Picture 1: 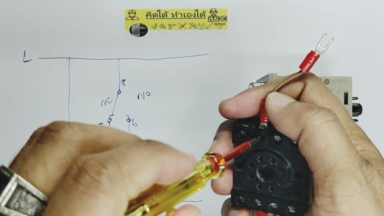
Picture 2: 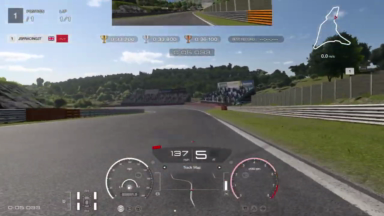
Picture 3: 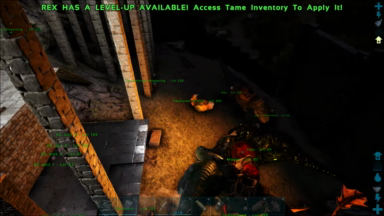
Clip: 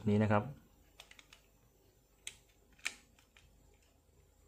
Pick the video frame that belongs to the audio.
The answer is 1